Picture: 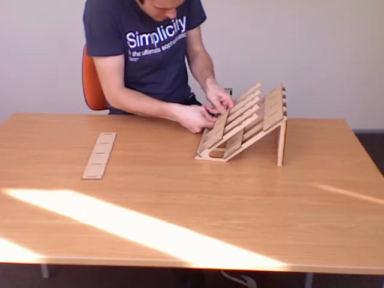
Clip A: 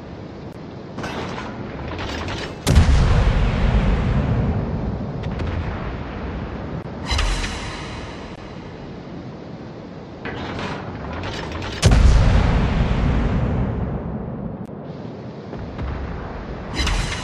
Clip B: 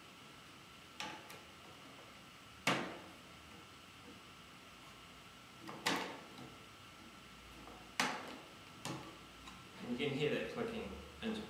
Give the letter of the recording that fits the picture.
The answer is B